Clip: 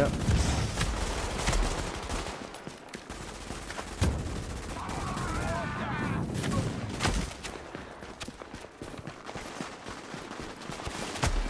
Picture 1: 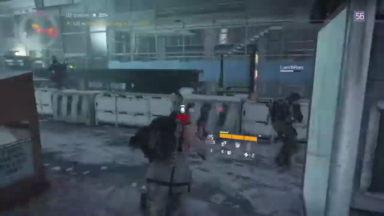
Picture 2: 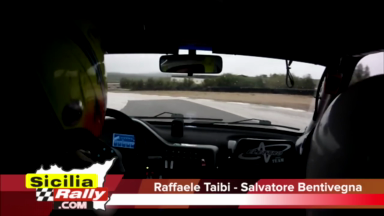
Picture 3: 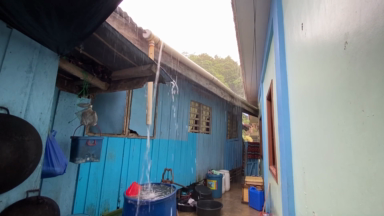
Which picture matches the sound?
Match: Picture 1